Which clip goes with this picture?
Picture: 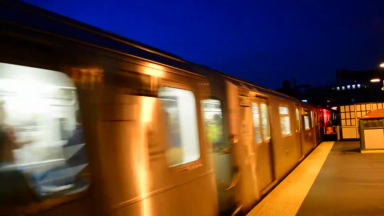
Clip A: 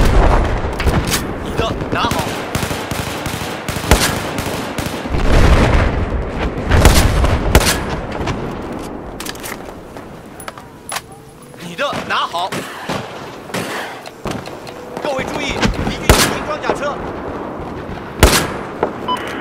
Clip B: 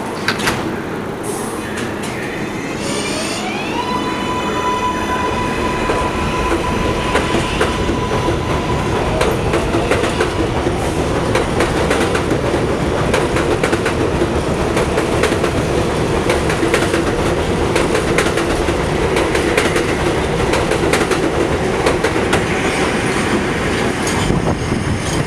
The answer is B